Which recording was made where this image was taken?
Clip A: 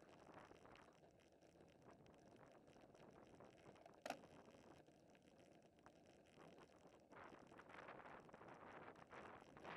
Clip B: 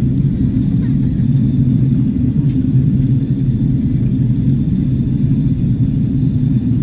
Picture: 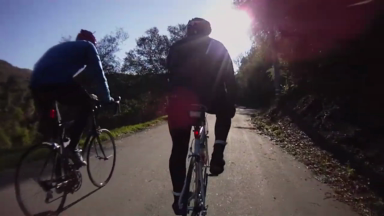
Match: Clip A